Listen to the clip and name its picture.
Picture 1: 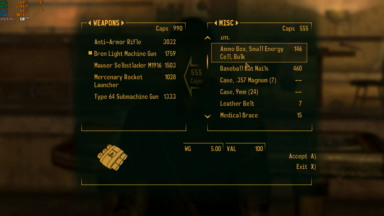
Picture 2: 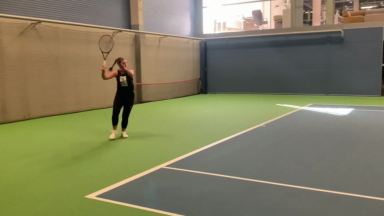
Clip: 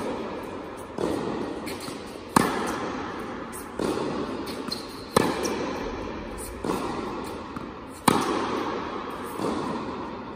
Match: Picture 2